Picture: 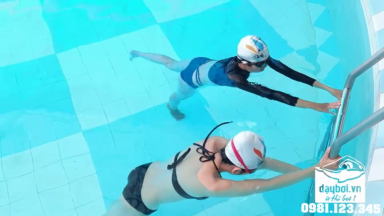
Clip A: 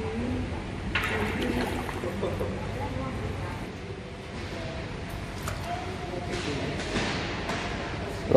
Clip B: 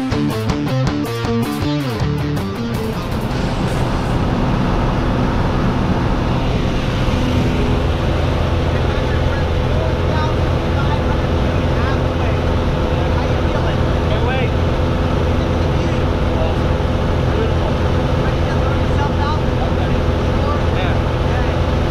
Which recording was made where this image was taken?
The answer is A